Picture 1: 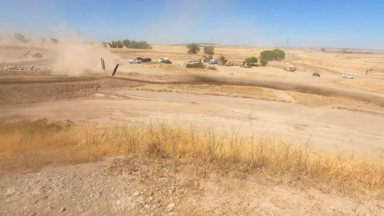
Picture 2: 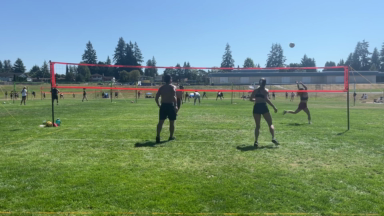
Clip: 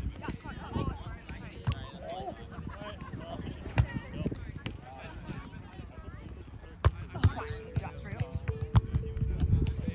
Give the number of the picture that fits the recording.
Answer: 2